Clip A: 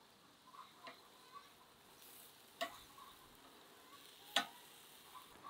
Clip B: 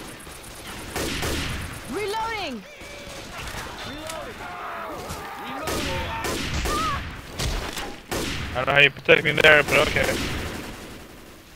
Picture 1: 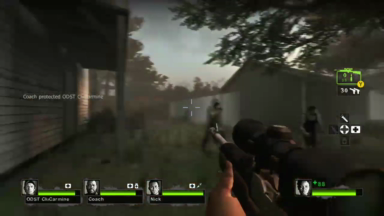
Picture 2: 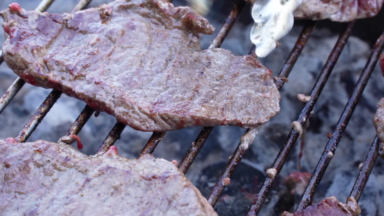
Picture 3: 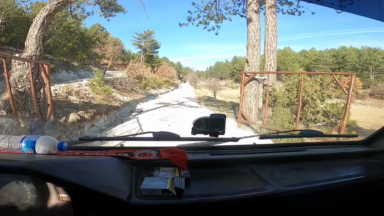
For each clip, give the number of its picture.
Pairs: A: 2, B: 1